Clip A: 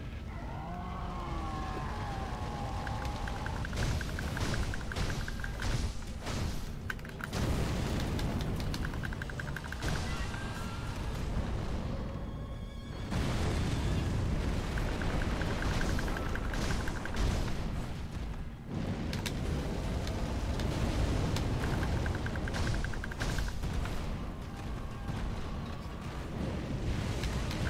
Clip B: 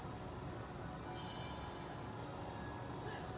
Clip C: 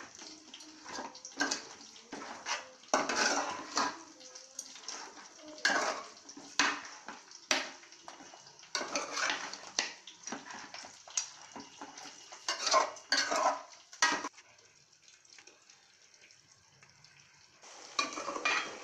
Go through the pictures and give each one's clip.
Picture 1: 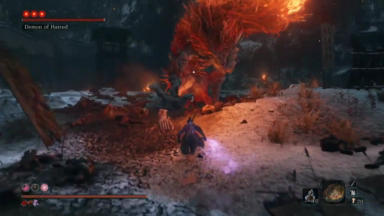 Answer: A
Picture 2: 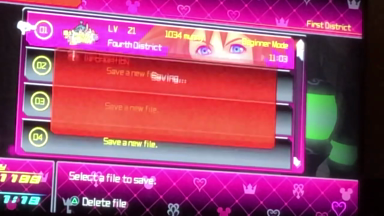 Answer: B